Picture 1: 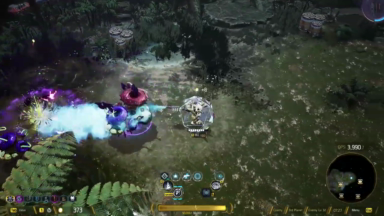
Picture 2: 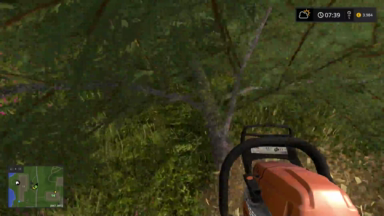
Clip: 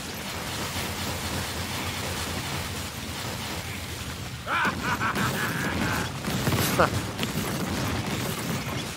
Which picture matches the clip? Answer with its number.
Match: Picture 1